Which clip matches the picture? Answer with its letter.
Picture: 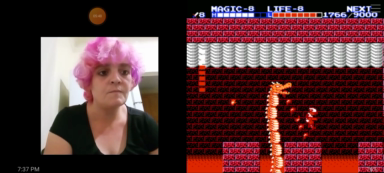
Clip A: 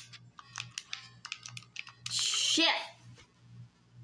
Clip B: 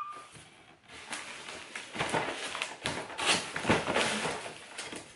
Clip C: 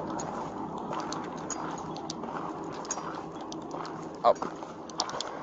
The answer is A